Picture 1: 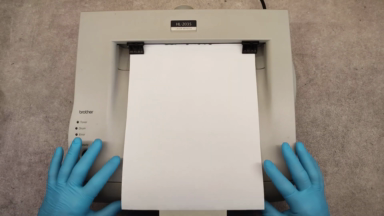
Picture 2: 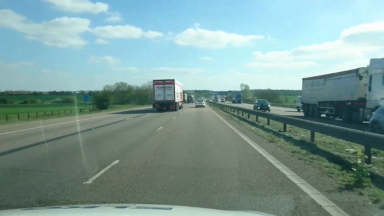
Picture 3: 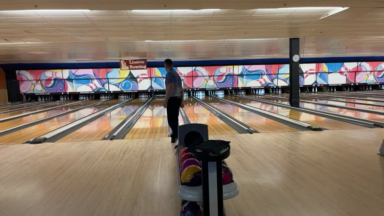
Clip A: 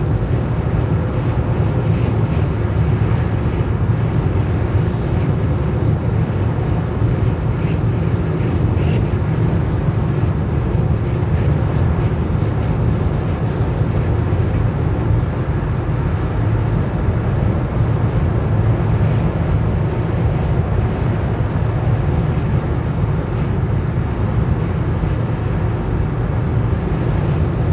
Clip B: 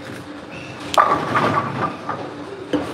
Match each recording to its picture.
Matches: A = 2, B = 3